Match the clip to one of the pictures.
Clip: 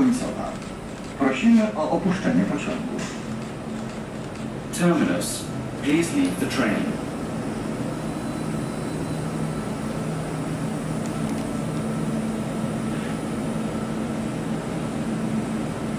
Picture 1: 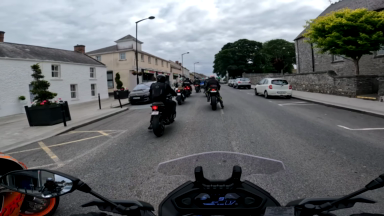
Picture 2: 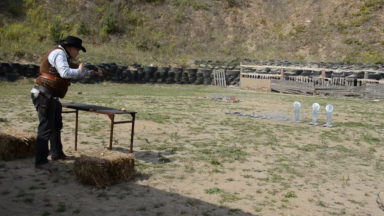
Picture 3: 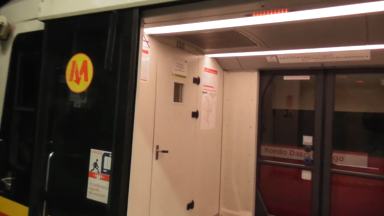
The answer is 3